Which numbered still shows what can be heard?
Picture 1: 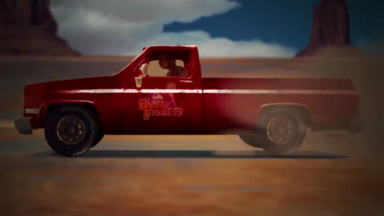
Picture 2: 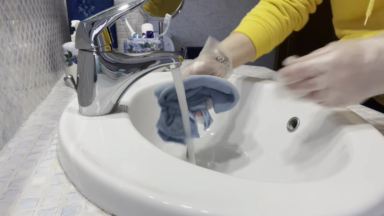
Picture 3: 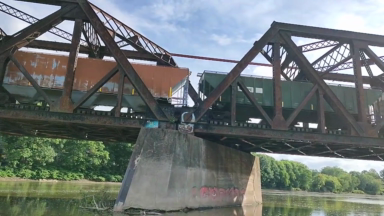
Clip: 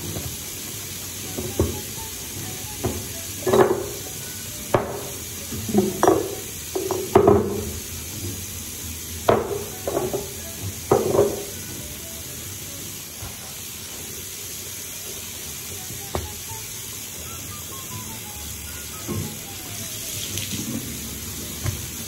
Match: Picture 2